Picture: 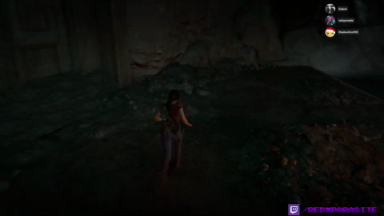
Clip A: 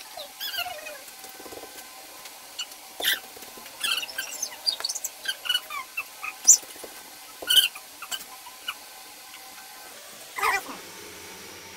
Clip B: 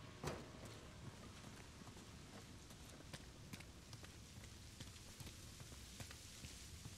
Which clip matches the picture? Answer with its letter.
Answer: B